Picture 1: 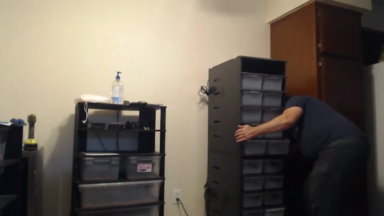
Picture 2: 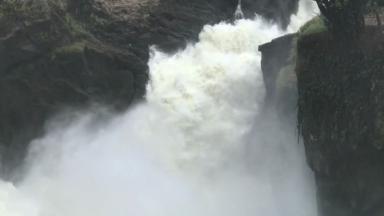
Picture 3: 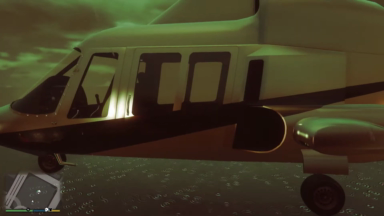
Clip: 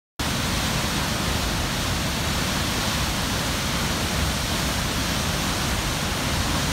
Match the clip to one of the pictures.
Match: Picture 2